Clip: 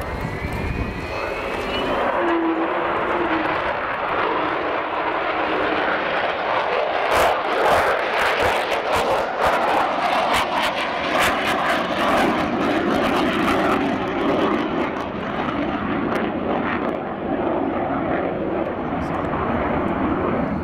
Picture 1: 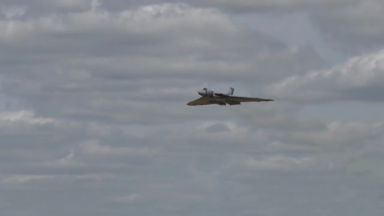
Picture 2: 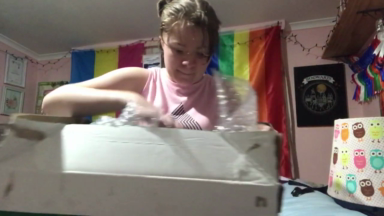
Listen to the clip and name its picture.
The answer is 1